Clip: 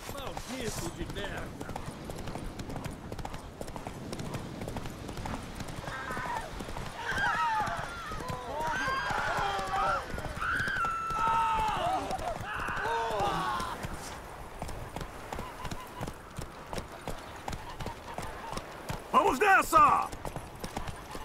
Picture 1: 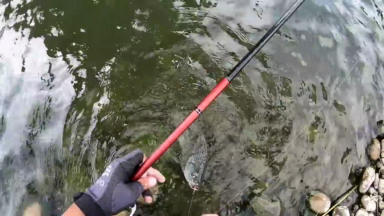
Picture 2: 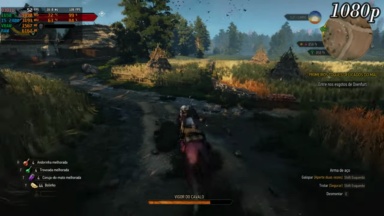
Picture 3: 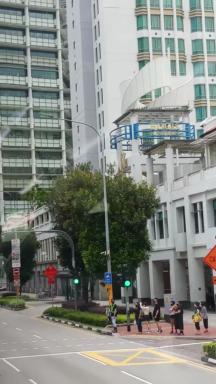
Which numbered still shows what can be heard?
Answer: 2